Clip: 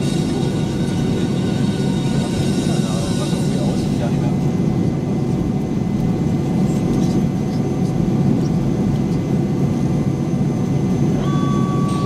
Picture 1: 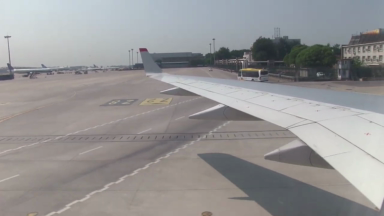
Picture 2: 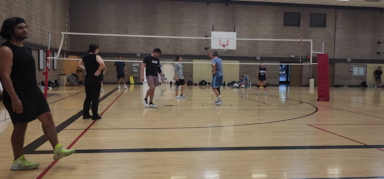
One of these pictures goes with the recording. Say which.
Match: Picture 1